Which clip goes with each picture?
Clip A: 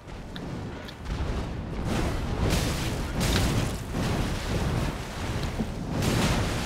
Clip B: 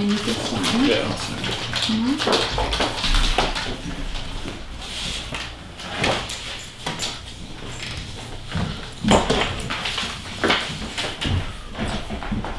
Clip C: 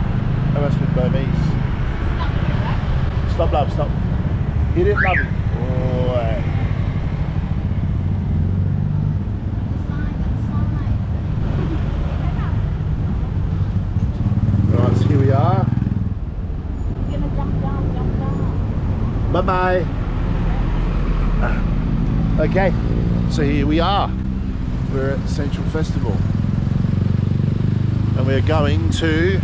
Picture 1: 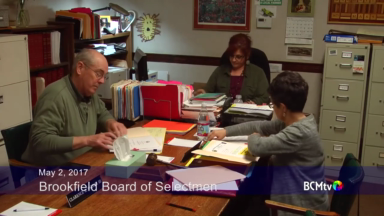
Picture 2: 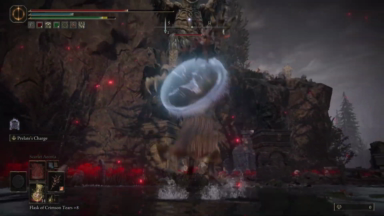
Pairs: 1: B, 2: A